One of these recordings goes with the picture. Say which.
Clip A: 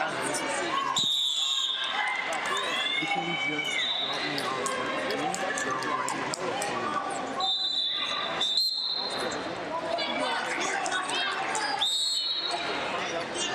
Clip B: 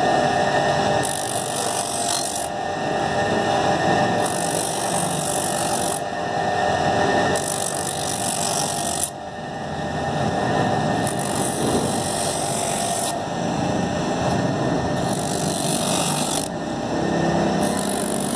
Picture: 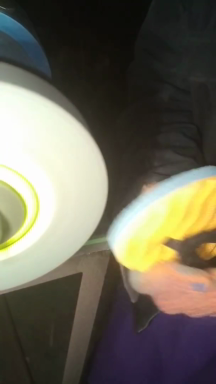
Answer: B